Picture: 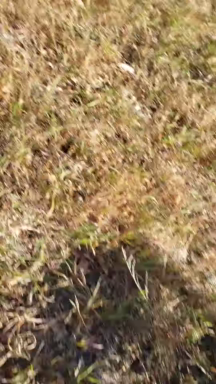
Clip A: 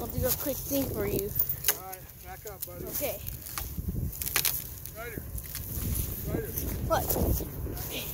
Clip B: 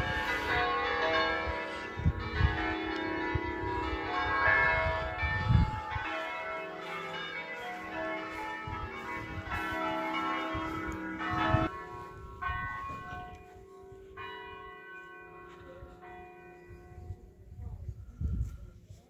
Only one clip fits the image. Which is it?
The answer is A